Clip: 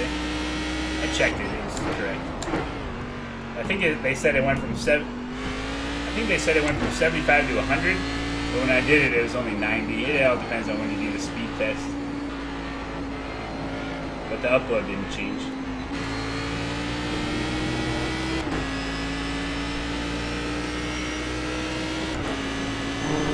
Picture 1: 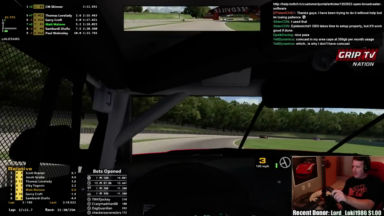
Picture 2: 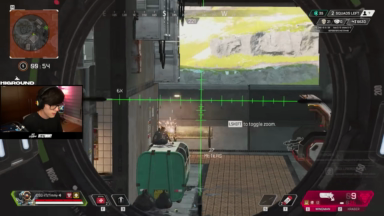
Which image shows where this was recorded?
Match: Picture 1